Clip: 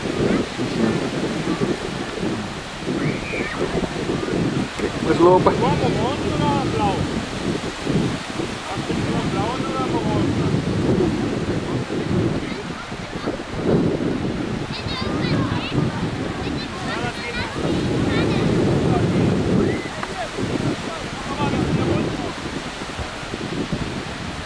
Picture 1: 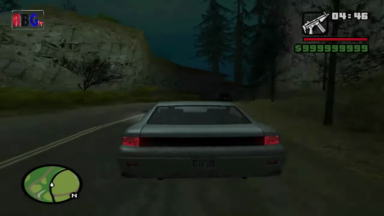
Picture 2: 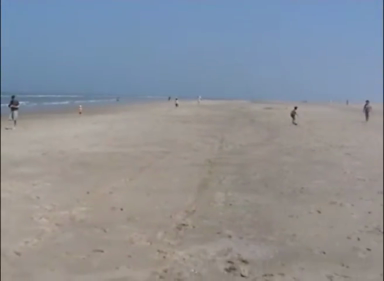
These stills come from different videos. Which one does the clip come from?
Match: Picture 2